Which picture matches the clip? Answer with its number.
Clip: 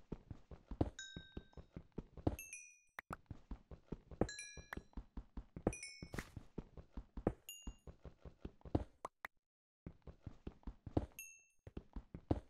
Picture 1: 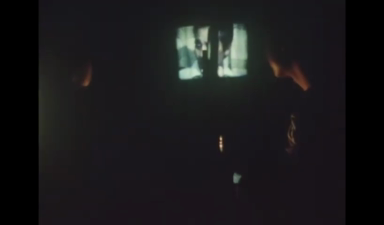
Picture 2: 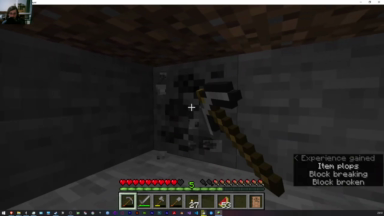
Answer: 2